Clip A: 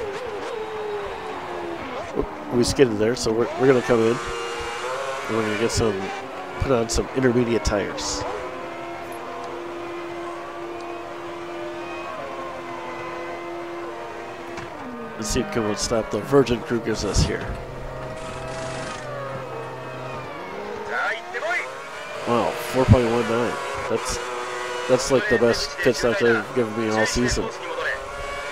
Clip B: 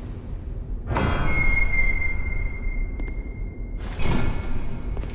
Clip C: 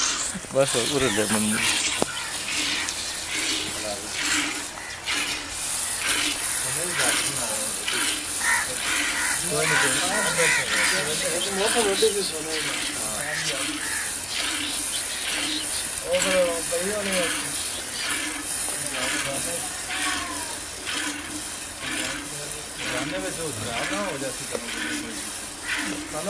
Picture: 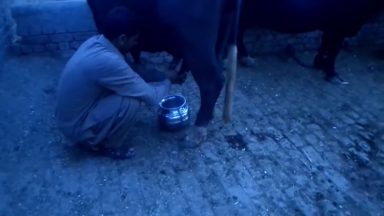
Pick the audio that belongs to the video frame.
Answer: C